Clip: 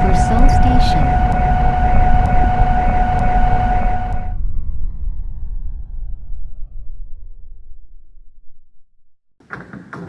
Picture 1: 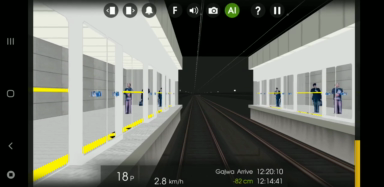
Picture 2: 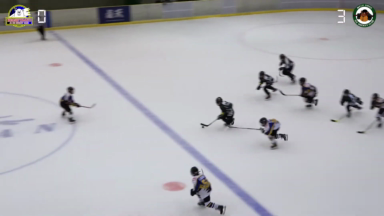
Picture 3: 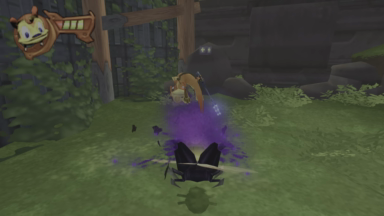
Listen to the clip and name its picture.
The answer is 1